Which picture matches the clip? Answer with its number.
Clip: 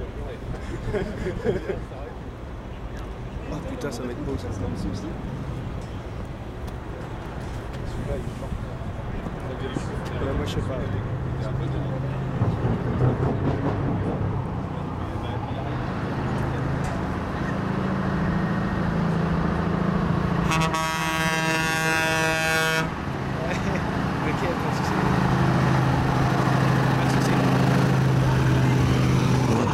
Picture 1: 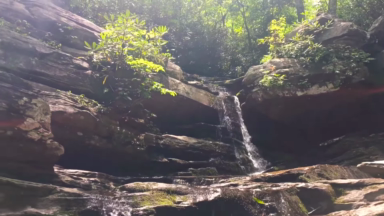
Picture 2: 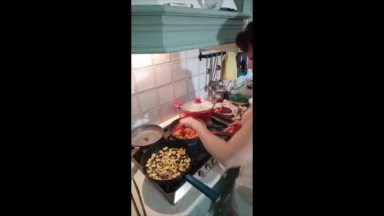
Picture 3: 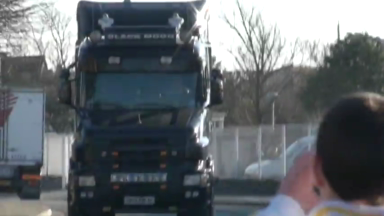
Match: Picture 3